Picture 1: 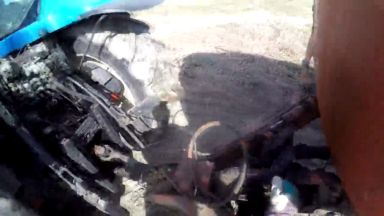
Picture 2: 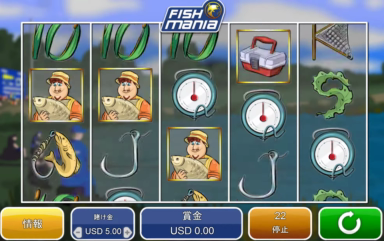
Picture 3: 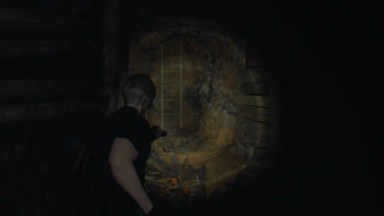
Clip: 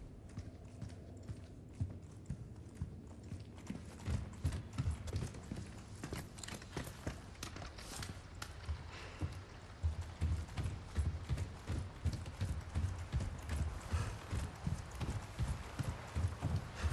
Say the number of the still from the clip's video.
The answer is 3